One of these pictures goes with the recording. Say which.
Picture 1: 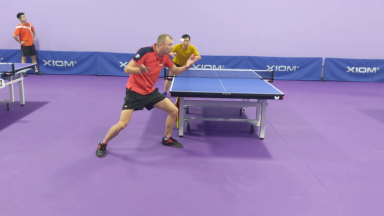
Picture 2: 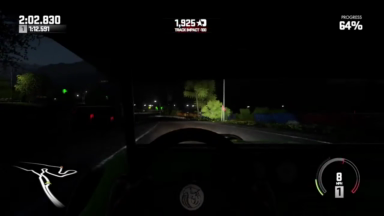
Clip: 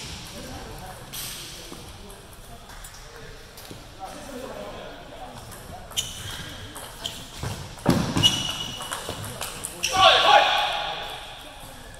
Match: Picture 1